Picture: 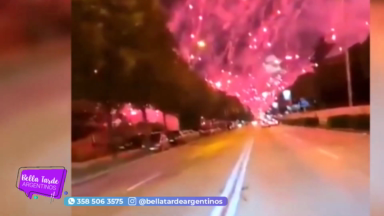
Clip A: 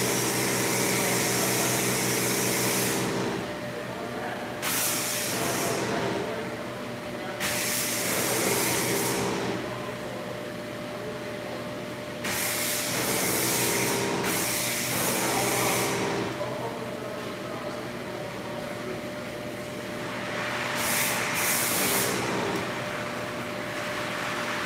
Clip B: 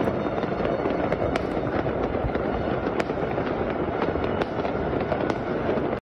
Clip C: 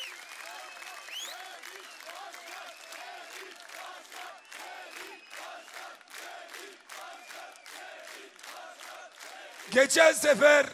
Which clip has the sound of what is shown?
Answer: B